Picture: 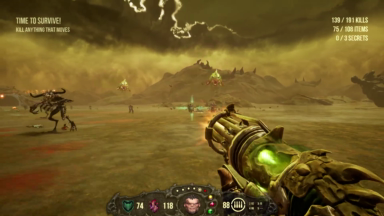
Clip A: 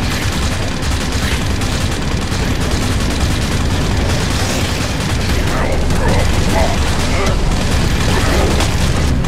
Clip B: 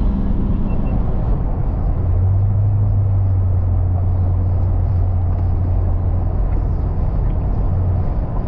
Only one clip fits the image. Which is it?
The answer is A